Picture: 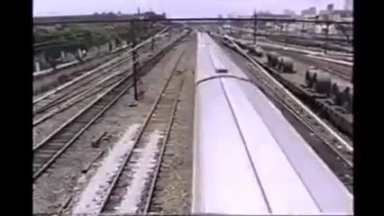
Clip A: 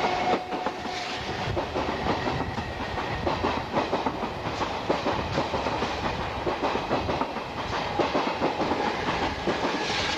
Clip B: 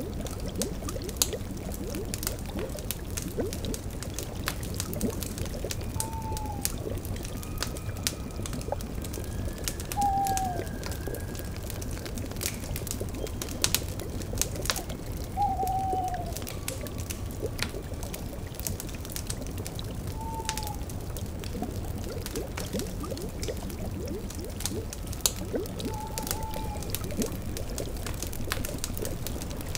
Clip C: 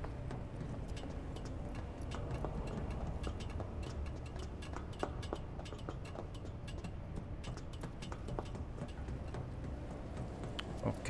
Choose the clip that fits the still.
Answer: A